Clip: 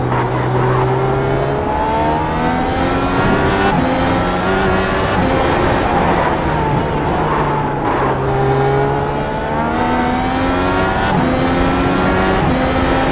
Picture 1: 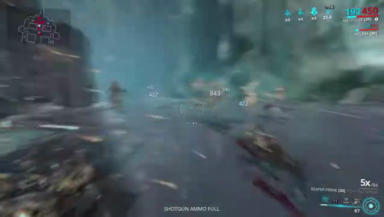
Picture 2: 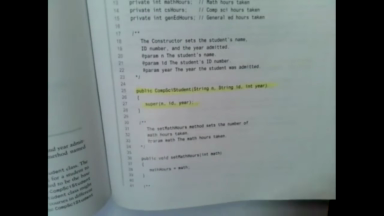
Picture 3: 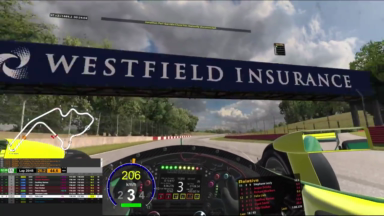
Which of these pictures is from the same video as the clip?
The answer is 3